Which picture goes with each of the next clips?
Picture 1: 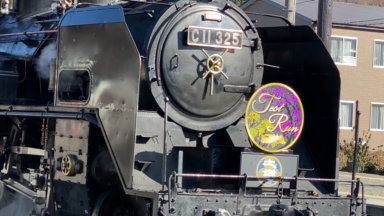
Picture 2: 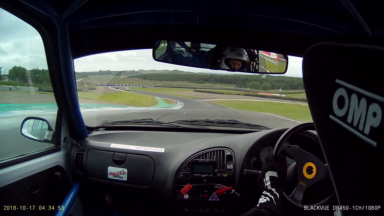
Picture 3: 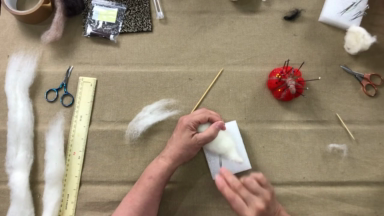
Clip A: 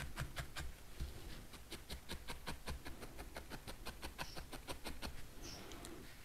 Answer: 3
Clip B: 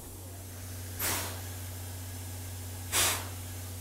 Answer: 1